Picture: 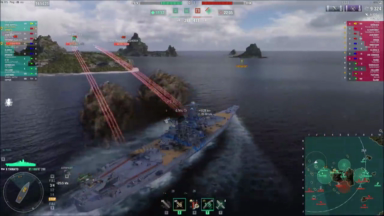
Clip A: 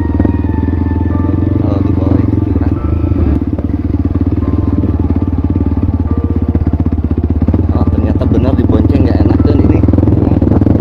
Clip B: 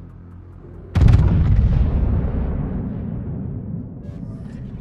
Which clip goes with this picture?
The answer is B